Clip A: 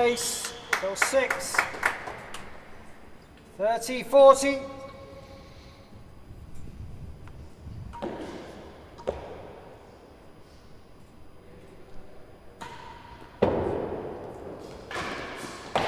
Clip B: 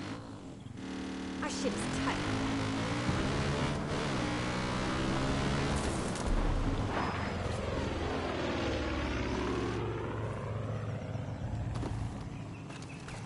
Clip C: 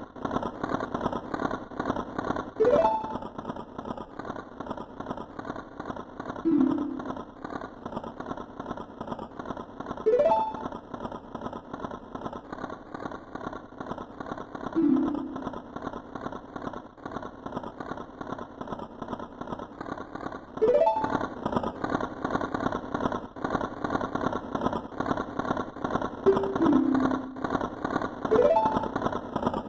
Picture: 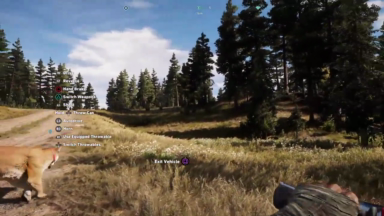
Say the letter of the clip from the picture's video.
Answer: B